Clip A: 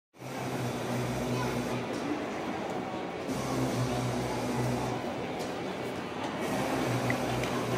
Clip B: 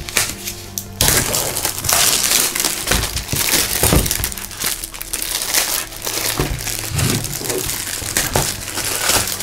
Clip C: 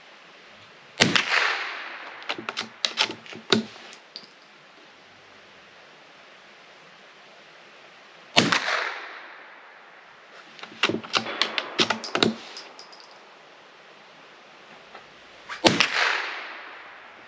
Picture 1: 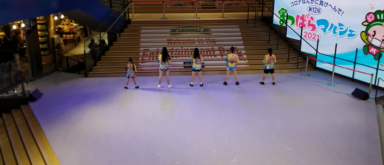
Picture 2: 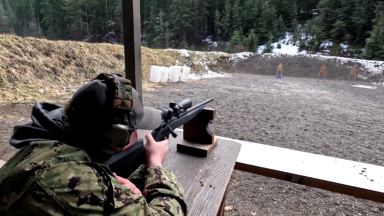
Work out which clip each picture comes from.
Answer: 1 A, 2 C